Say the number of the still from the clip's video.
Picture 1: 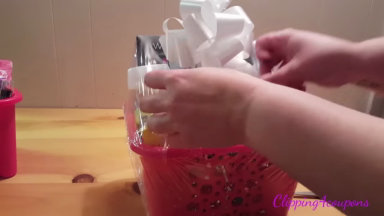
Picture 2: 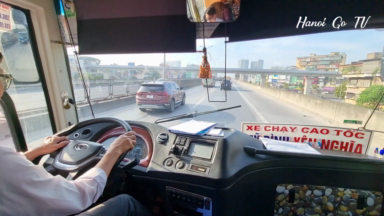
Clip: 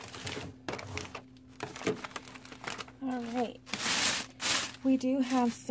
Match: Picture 1